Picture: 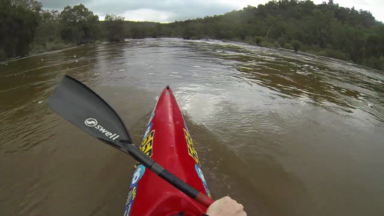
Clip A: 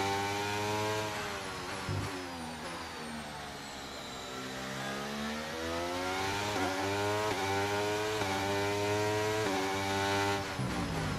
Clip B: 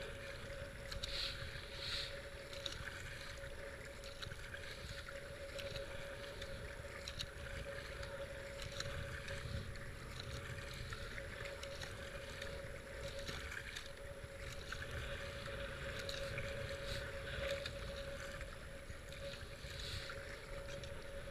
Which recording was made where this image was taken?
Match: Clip B